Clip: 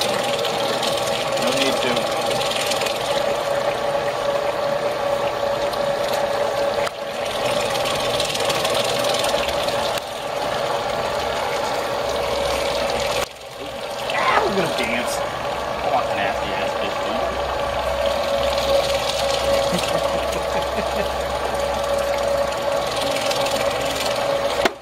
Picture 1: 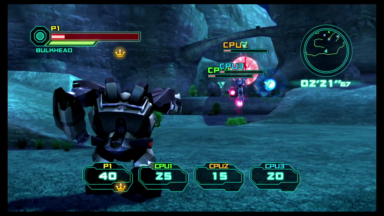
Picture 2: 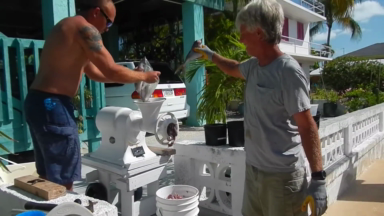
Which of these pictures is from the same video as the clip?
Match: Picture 2